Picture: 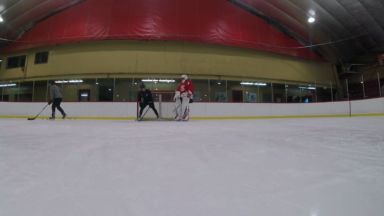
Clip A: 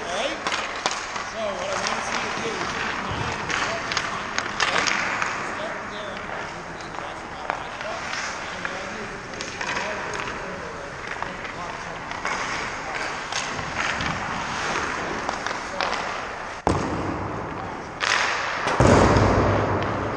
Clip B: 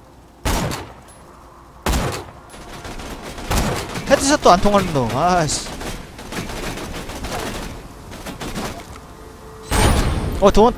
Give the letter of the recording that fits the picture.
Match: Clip A